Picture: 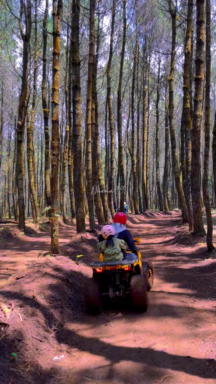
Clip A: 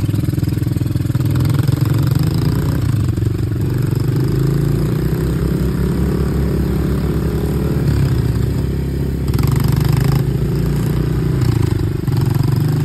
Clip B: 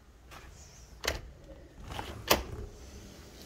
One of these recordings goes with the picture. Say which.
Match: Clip A